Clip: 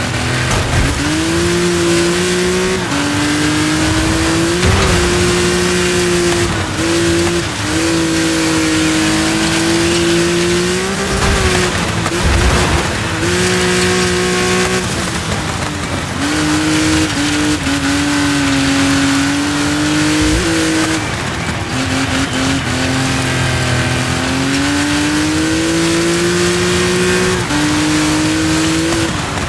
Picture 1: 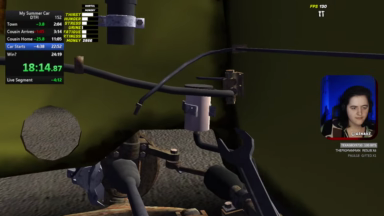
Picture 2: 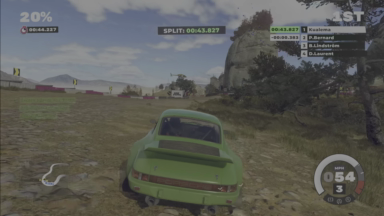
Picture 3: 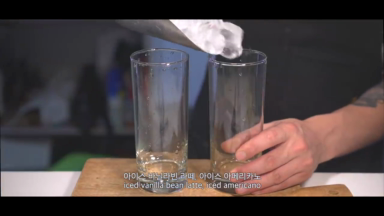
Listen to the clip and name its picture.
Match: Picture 2